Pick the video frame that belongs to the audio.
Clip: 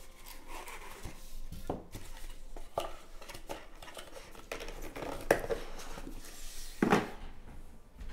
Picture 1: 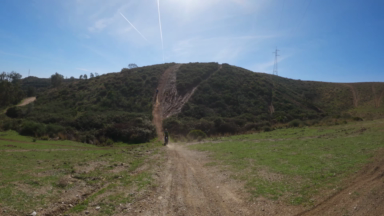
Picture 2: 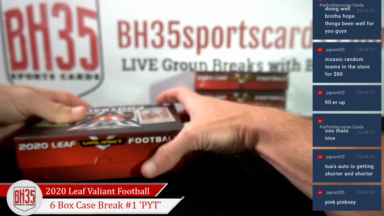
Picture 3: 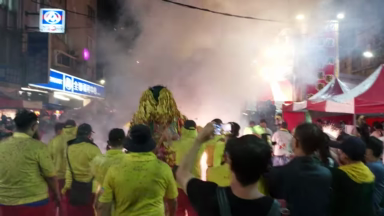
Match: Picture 2